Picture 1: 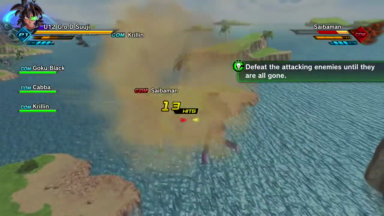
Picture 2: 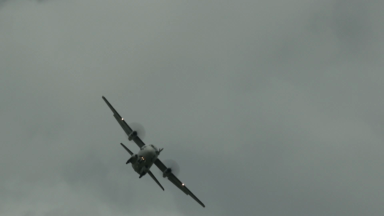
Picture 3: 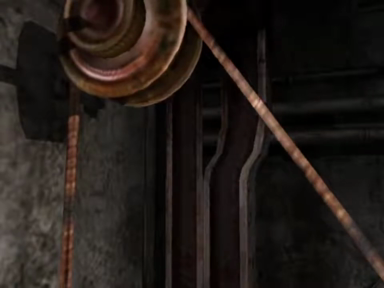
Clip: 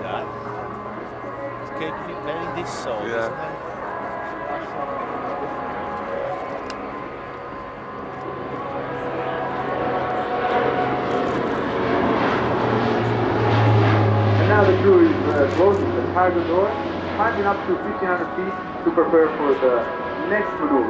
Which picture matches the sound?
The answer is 2